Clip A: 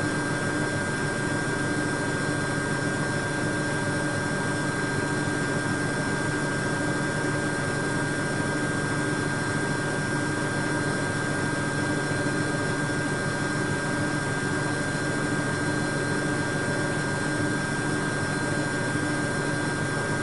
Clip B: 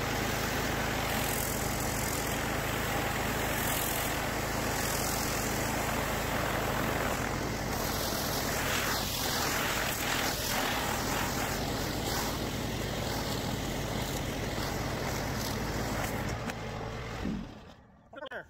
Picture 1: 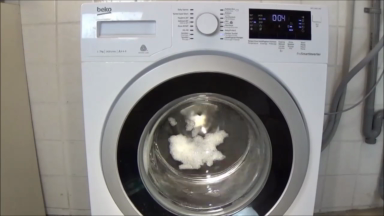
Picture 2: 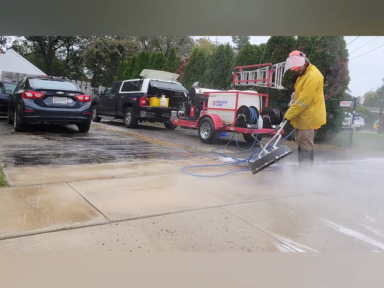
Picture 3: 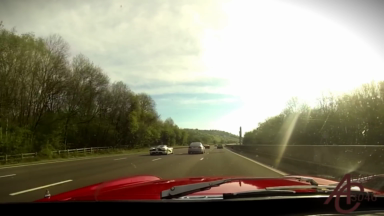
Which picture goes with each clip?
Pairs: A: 1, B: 2